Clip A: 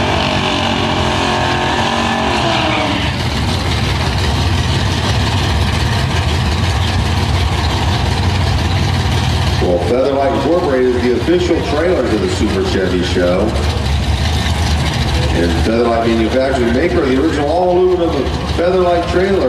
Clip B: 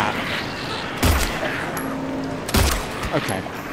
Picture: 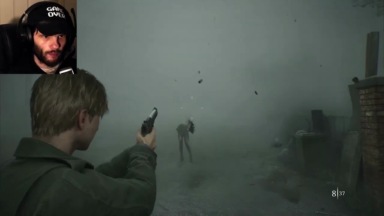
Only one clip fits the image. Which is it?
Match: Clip B